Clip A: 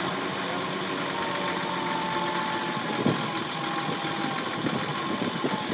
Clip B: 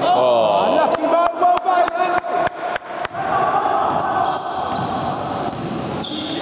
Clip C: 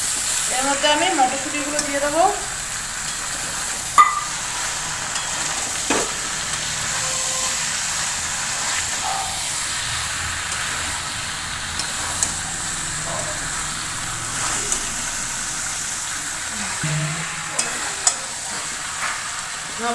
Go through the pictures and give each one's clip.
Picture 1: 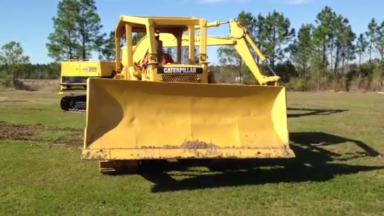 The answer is A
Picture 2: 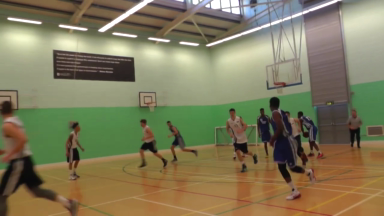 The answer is B